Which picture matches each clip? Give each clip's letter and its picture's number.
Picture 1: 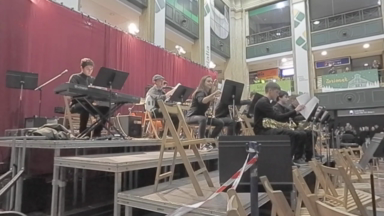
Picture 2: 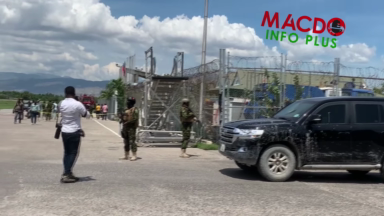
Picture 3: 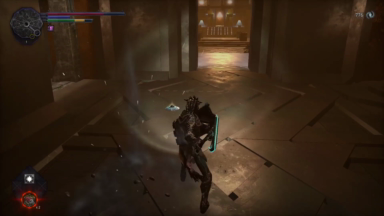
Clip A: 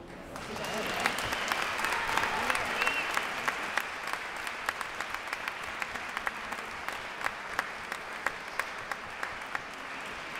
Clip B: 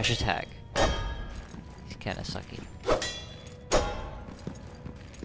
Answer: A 1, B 3